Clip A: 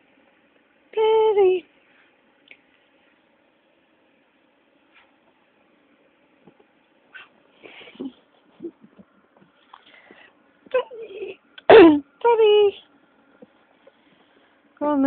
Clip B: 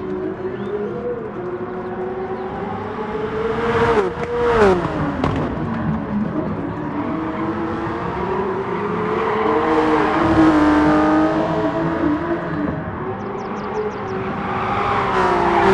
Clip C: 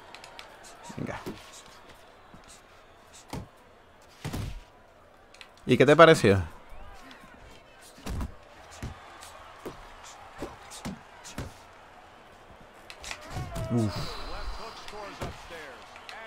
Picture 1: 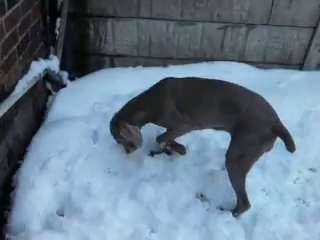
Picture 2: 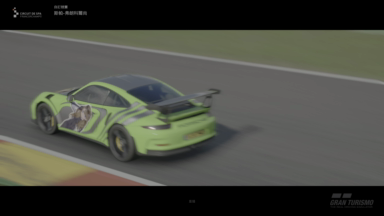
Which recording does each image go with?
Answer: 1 A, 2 B